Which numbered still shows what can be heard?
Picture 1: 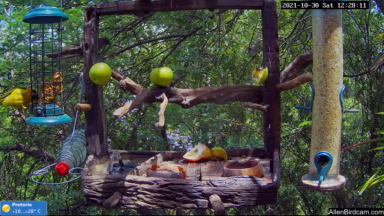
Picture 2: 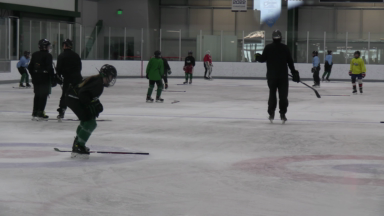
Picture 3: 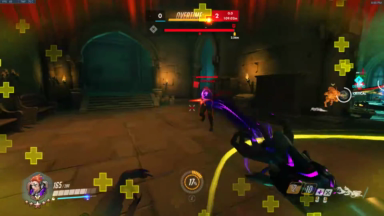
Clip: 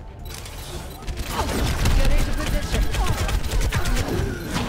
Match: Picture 3